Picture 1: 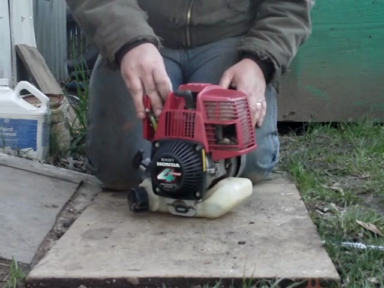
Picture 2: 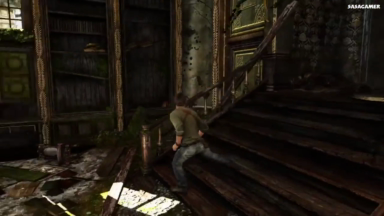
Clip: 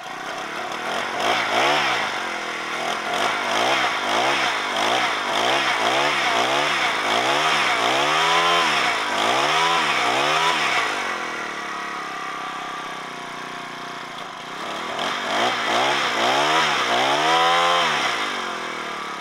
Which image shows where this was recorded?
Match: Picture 1